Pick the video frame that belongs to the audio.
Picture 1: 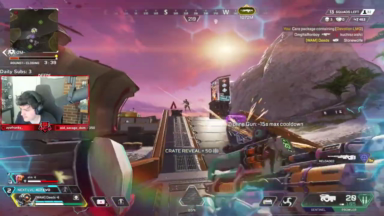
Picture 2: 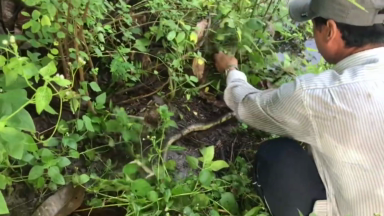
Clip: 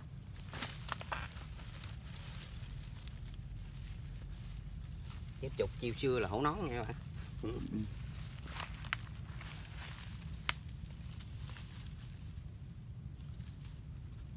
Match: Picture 2